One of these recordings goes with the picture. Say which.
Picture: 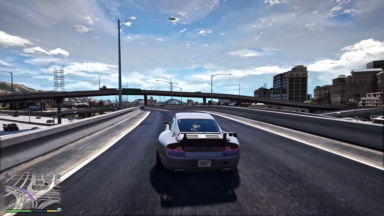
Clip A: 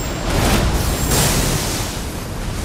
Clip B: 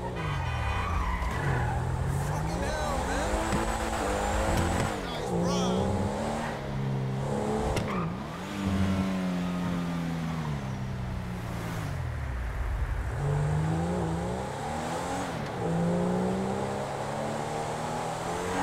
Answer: B